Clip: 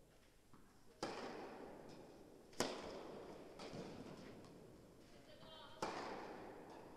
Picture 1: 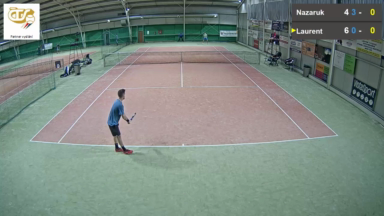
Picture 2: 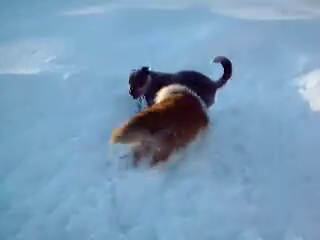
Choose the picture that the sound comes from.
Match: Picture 1